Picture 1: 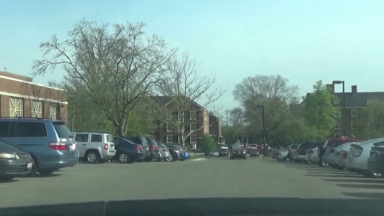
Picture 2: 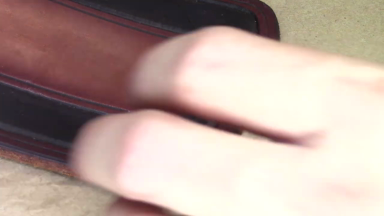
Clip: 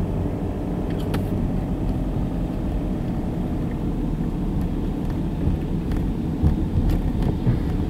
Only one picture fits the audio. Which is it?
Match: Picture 1